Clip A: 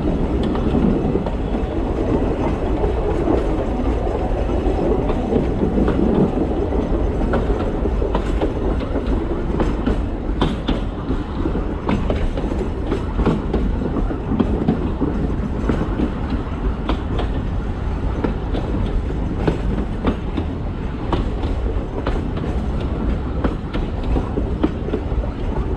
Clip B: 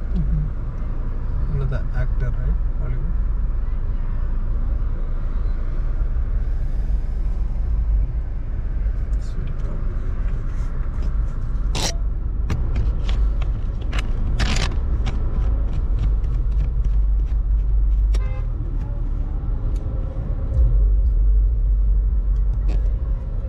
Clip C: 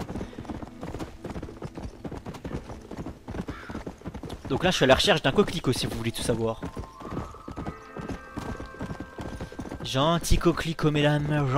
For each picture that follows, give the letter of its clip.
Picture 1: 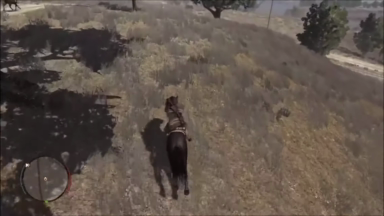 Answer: C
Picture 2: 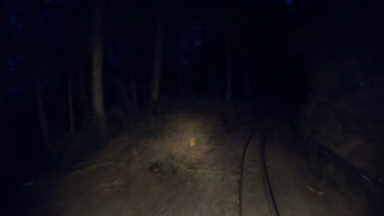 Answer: A